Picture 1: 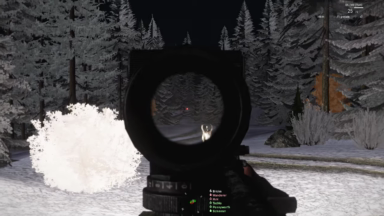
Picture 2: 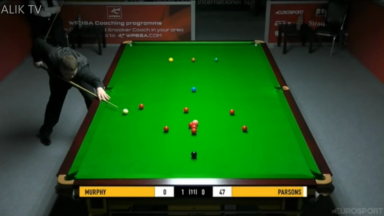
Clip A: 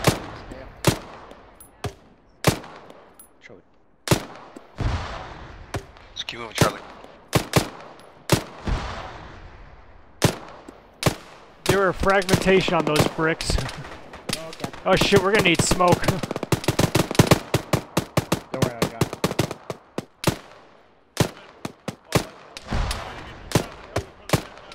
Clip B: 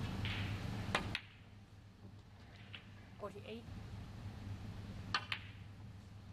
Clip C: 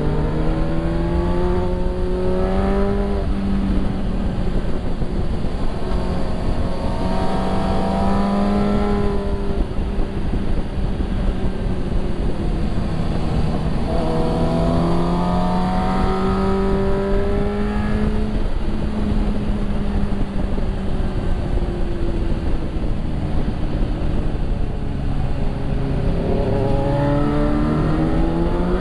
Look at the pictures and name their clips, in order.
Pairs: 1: A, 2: B